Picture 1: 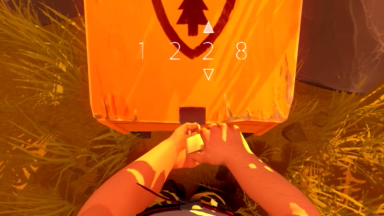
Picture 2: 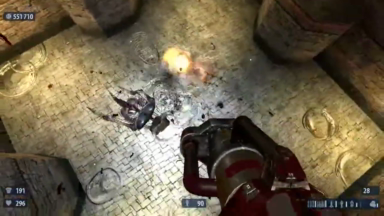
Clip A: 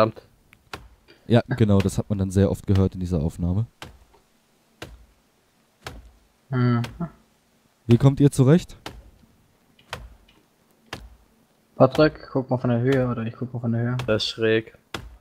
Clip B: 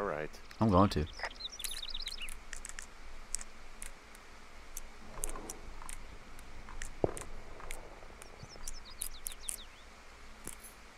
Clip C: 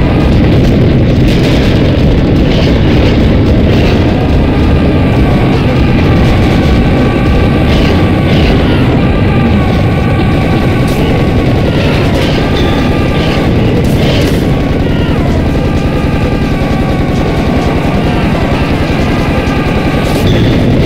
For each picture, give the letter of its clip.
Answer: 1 B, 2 C